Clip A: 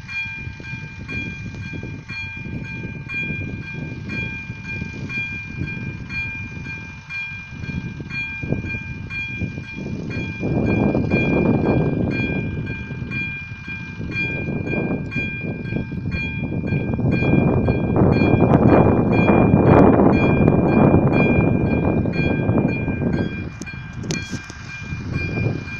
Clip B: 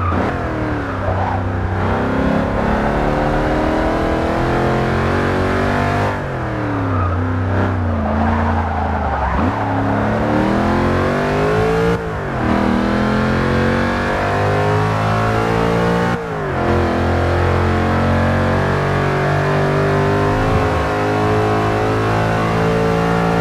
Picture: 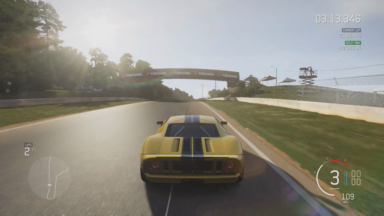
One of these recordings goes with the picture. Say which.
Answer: B